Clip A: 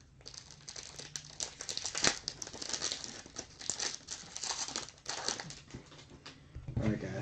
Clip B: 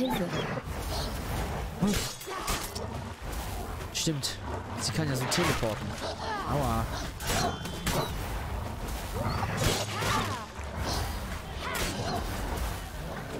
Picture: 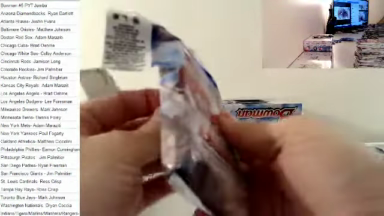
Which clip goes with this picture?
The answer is A